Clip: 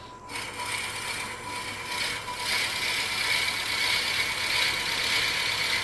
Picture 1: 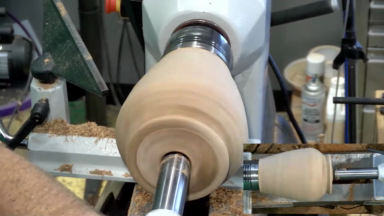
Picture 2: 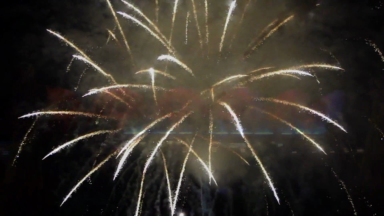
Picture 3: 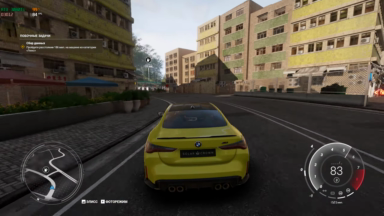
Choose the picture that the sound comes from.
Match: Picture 1